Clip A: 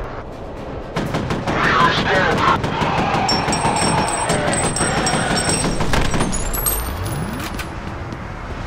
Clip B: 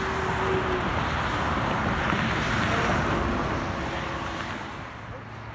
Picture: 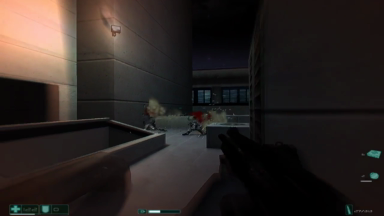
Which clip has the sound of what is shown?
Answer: A